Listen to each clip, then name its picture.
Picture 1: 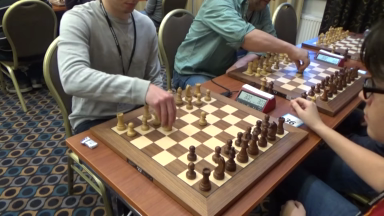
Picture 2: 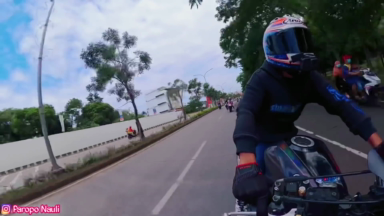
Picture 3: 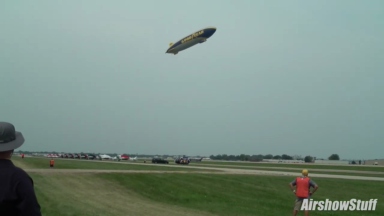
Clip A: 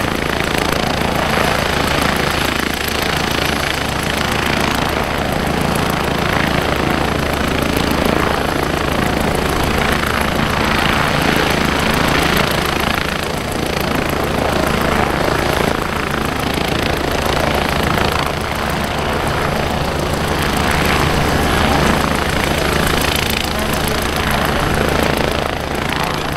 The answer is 3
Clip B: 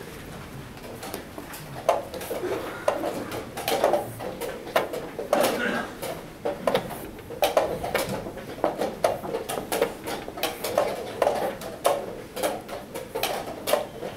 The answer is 1